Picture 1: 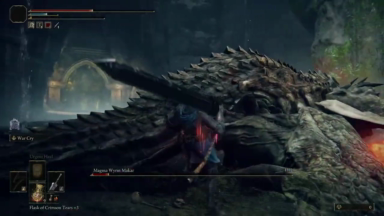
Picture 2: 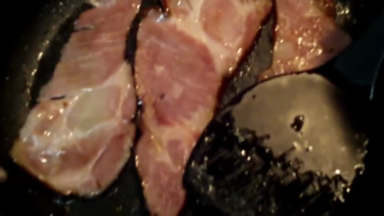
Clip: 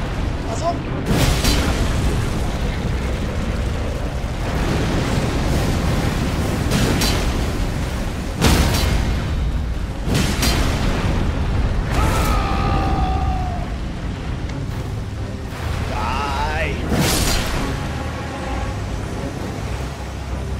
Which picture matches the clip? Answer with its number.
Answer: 1